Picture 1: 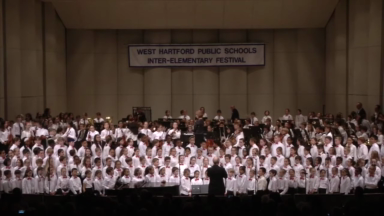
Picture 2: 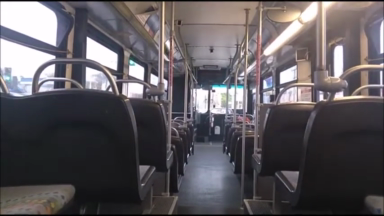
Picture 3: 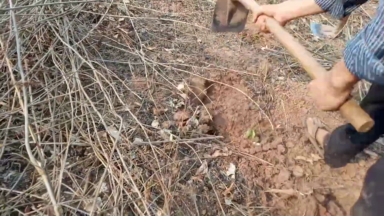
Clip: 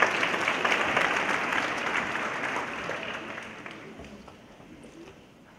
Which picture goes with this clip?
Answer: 1